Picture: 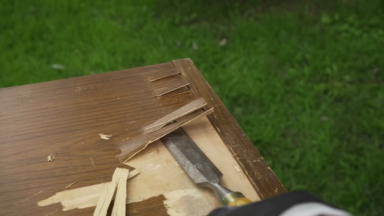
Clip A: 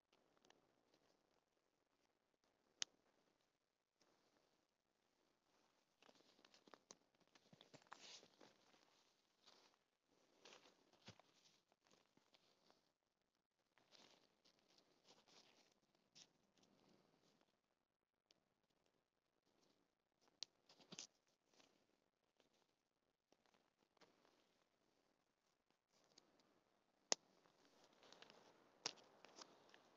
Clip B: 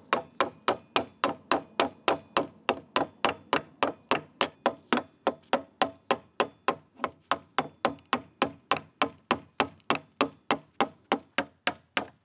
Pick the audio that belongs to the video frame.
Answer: B